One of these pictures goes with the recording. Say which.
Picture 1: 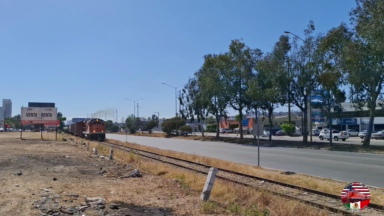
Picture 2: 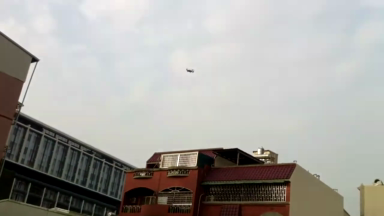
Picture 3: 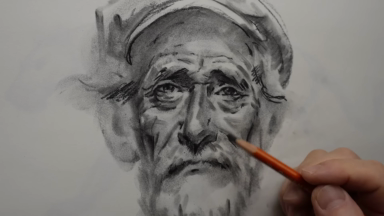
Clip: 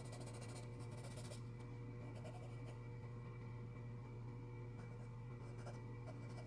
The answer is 3